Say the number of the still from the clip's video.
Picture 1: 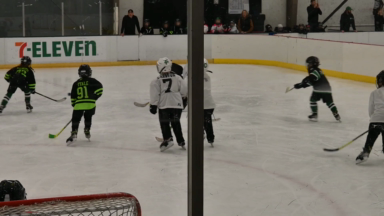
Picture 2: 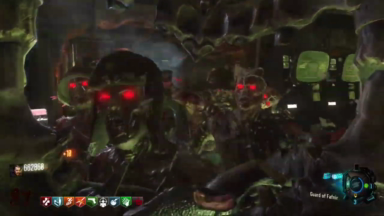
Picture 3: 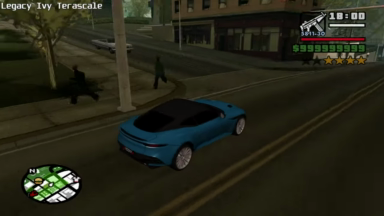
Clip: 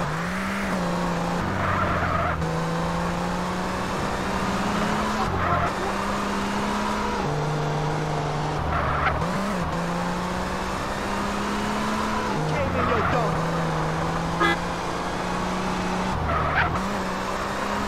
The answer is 3